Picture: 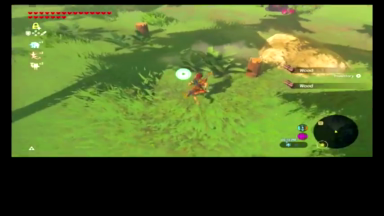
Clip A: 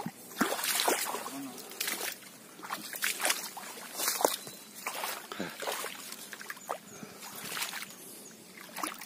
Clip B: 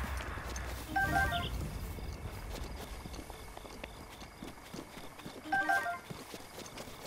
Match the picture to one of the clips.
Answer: B